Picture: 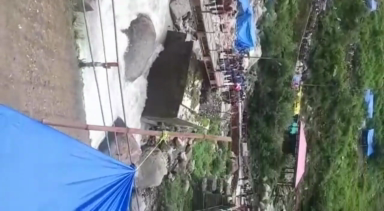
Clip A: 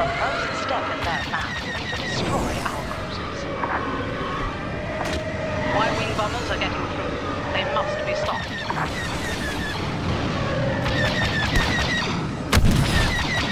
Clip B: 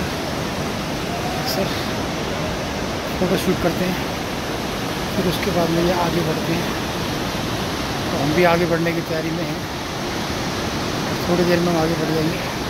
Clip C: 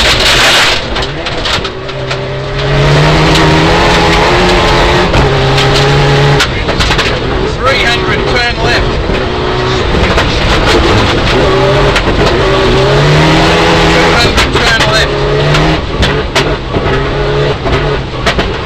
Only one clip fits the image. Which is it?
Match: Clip B